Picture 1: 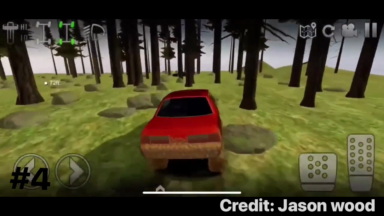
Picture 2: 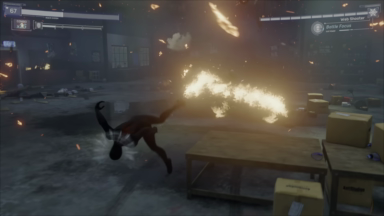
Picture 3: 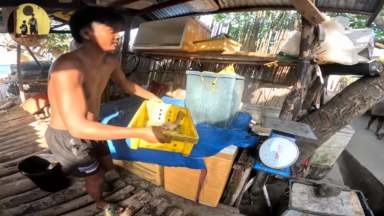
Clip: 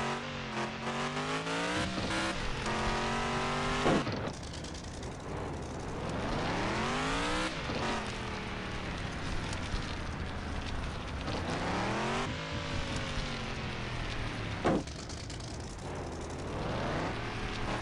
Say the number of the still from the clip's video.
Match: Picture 1